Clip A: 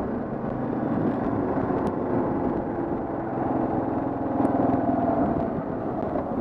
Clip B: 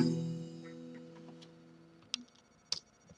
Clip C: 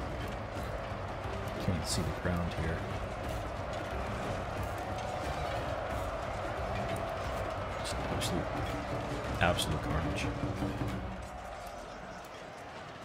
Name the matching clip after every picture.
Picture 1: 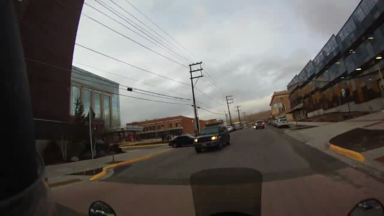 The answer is A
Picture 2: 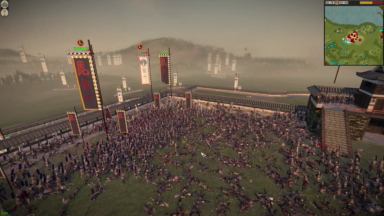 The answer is C